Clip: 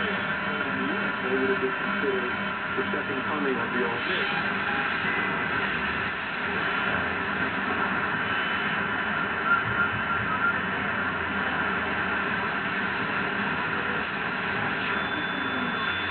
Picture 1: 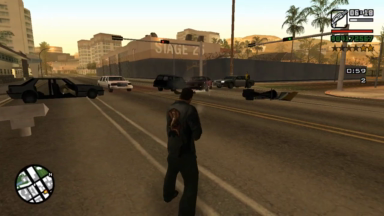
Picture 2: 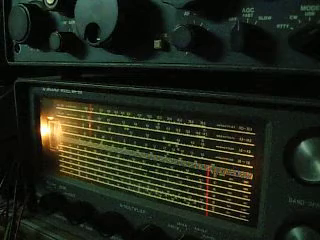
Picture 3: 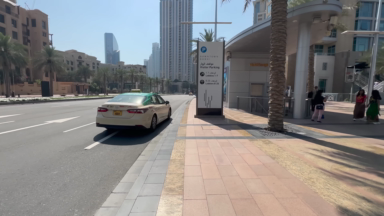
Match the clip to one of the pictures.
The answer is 2